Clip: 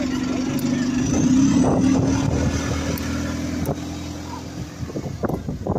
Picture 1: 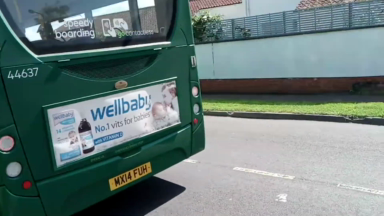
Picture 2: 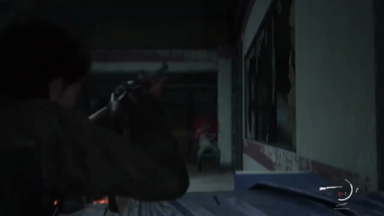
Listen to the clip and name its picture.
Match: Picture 1